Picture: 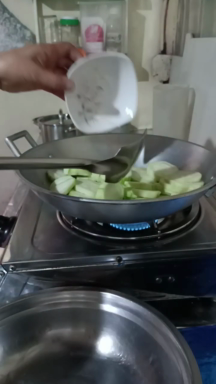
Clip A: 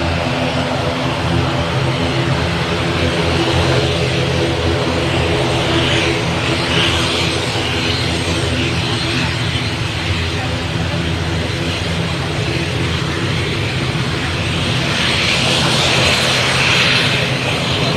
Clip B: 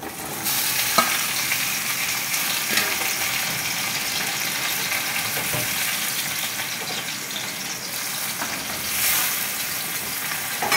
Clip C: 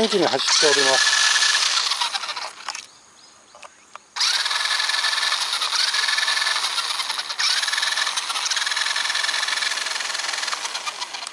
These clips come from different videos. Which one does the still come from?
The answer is B